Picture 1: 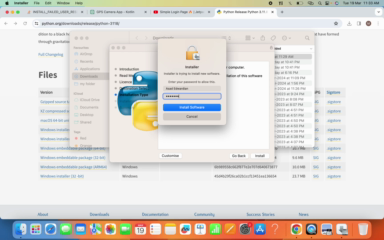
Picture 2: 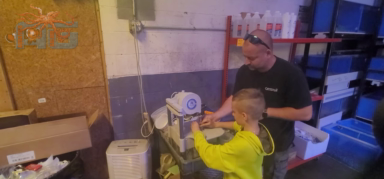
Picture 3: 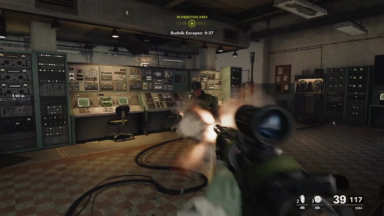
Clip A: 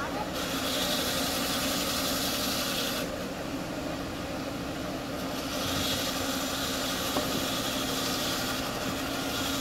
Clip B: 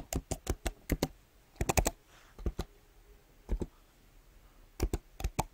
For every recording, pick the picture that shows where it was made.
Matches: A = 2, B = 1